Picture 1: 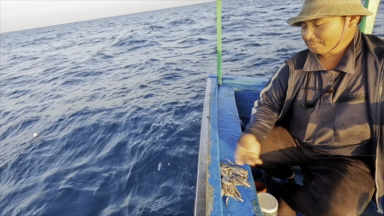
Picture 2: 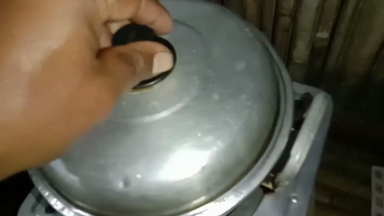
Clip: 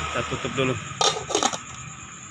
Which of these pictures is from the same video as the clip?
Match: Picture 2